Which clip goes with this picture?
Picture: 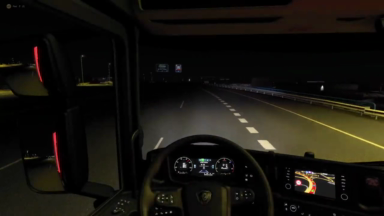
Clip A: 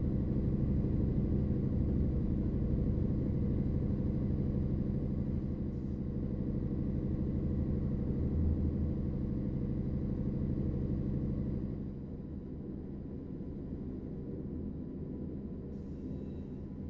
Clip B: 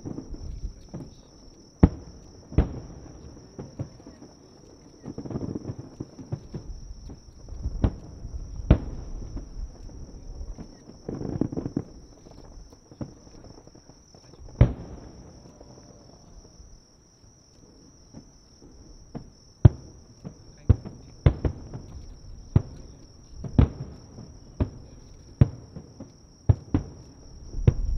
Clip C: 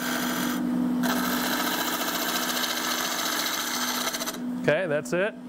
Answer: A